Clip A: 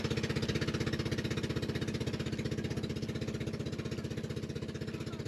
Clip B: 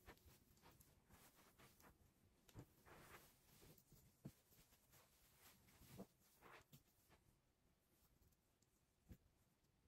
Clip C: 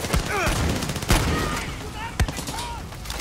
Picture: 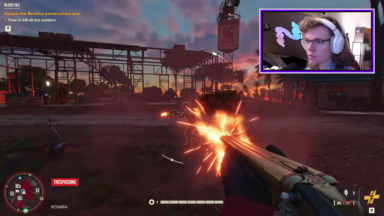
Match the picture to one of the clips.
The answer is C